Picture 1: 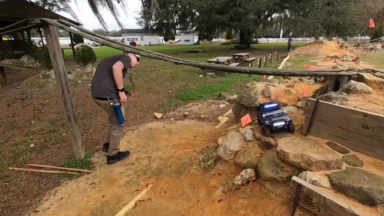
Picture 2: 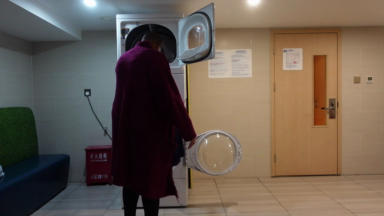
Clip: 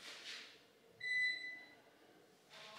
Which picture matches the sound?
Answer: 2